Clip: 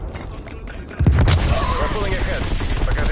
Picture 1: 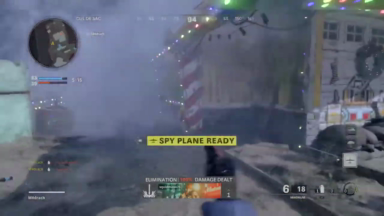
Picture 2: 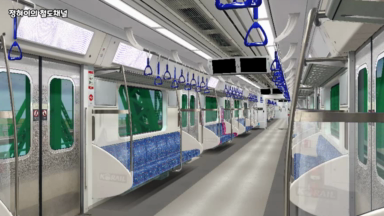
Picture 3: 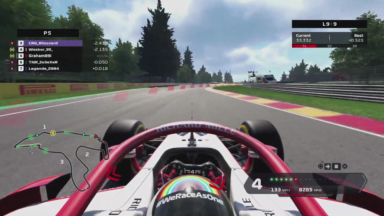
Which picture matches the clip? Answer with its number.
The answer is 1